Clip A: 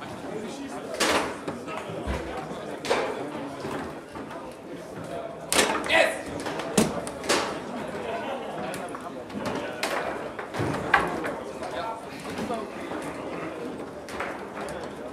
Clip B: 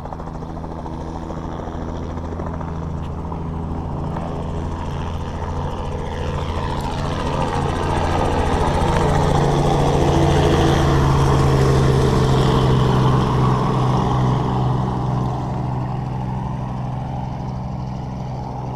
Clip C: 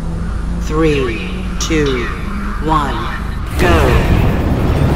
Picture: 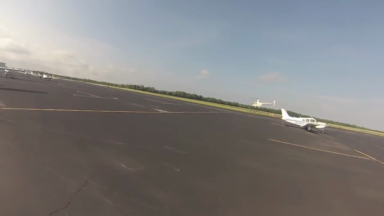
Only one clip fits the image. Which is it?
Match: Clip B